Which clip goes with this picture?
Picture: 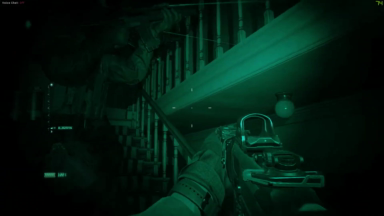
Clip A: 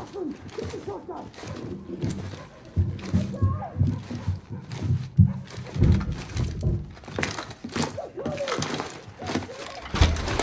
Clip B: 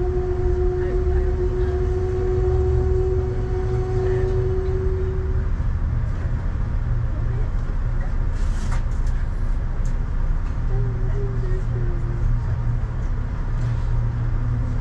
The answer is A